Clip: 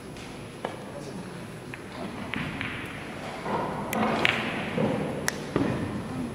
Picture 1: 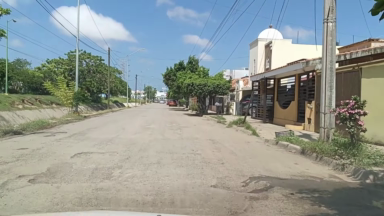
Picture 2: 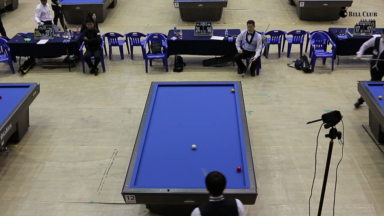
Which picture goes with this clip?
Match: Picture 2